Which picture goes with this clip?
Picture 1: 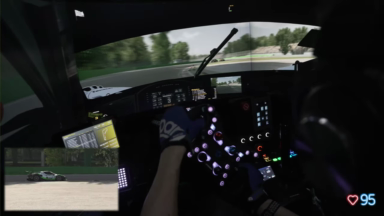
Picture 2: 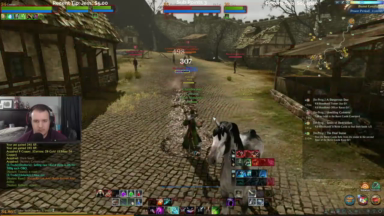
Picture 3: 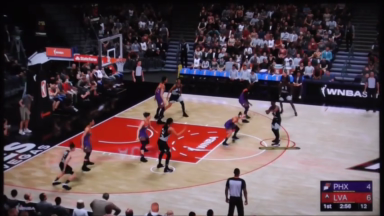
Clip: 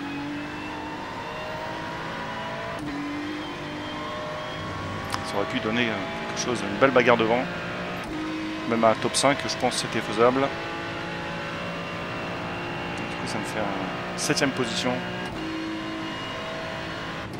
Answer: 1